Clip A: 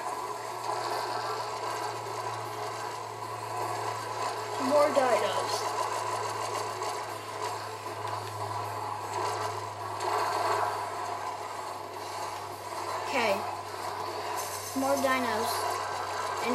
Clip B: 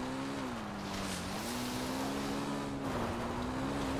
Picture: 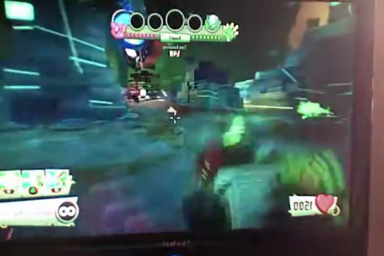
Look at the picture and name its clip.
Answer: A